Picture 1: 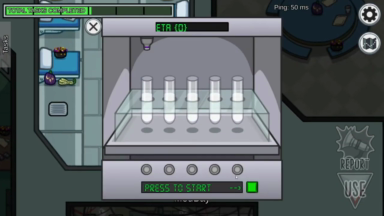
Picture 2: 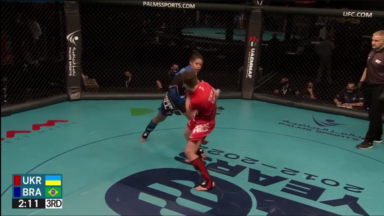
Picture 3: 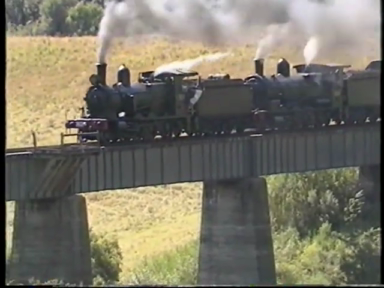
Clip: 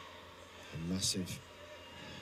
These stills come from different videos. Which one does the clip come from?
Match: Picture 2